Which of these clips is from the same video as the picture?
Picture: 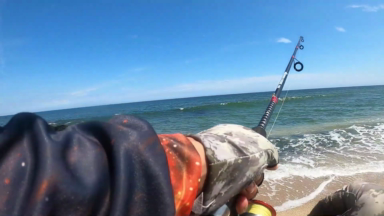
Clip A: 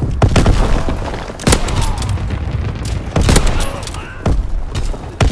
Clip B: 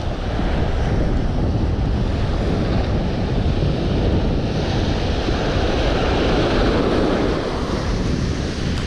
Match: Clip B